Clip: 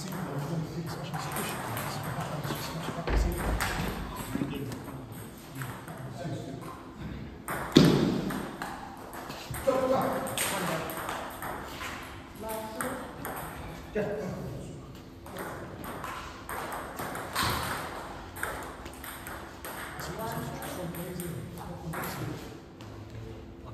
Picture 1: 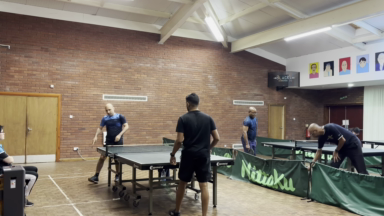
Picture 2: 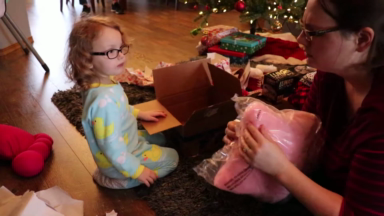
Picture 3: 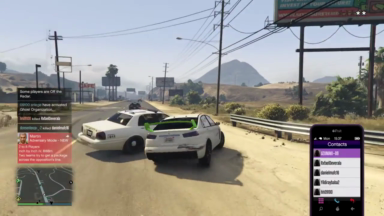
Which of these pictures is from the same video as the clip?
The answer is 1